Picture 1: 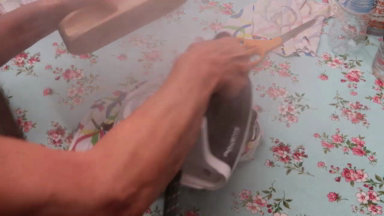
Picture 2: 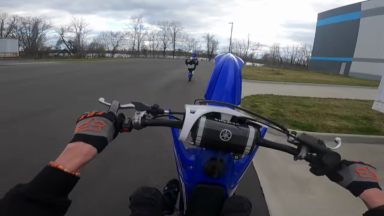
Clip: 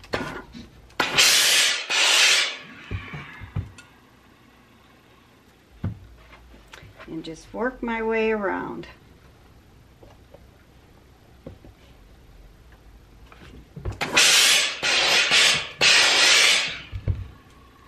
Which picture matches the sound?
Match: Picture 1